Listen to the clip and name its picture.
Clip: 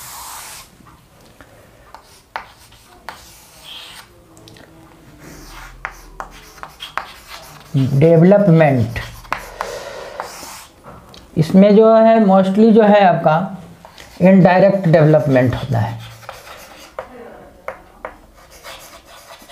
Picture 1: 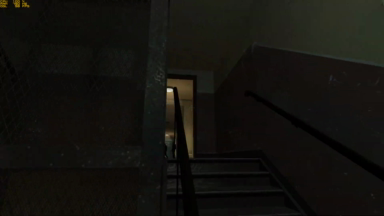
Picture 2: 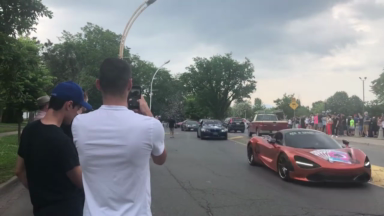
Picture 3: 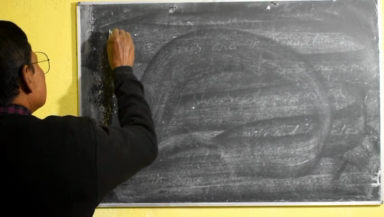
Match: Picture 3